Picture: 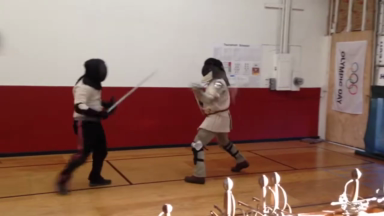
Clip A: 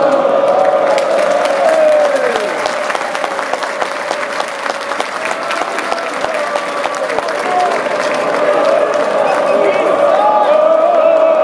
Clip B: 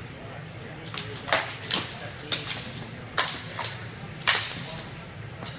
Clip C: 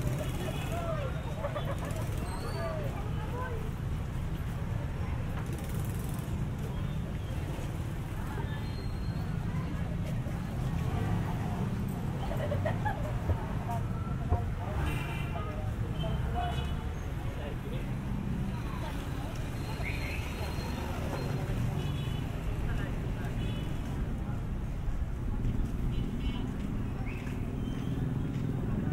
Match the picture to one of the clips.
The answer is B